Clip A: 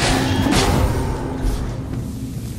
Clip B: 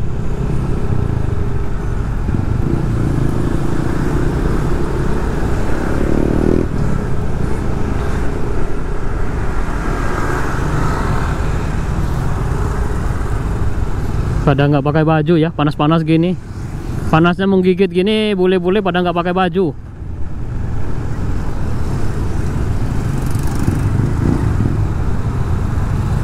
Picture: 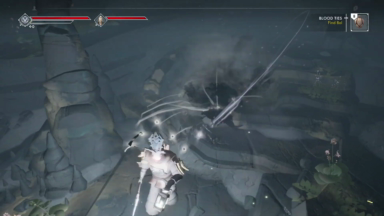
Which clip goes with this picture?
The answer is A